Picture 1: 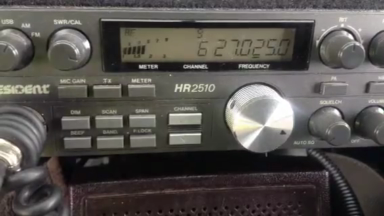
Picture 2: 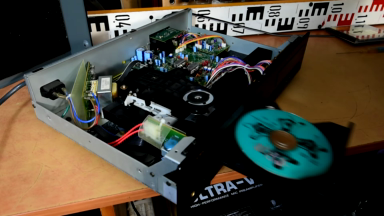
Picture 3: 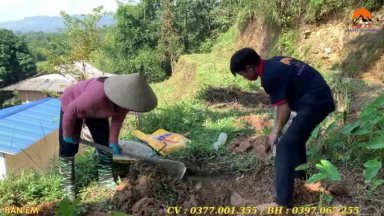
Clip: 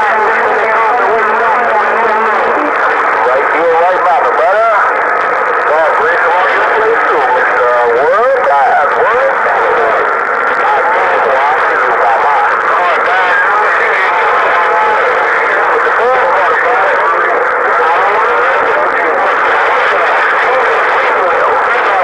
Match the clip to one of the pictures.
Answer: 1